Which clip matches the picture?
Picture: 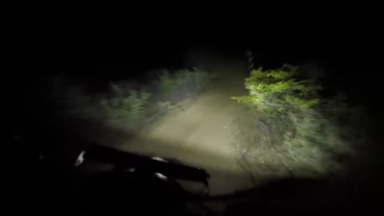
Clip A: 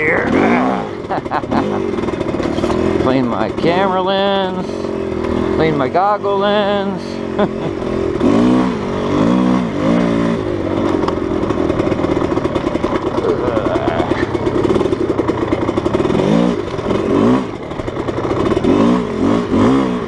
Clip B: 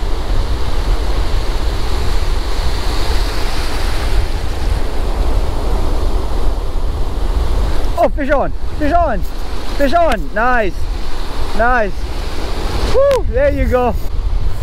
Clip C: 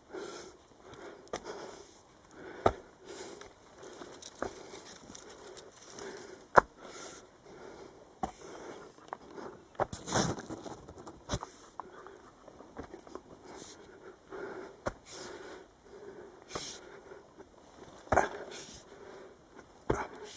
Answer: A